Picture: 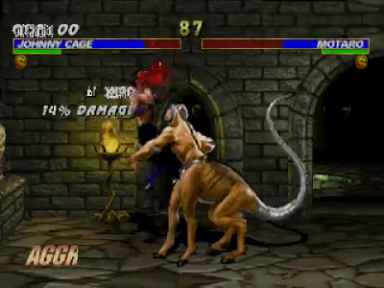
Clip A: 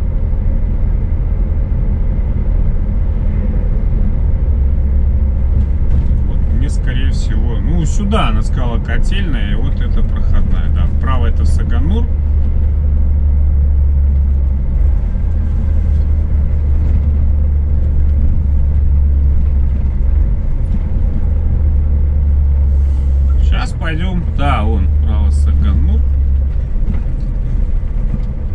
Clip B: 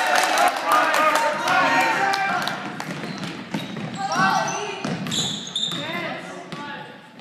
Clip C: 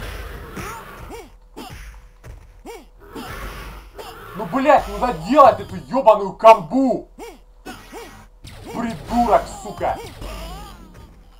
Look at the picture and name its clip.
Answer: C